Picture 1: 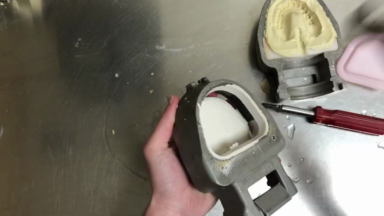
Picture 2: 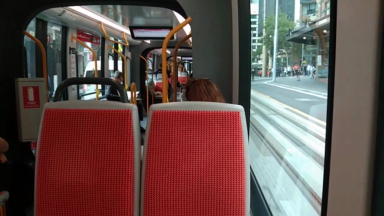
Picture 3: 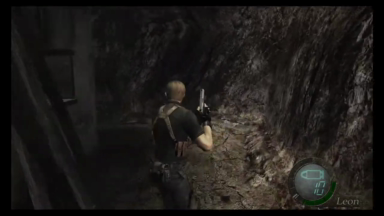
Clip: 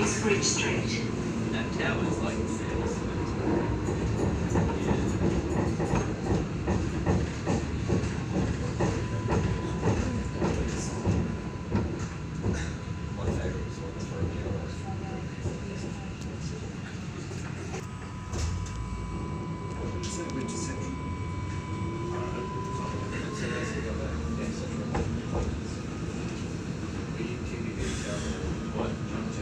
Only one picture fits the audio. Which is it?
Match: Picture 2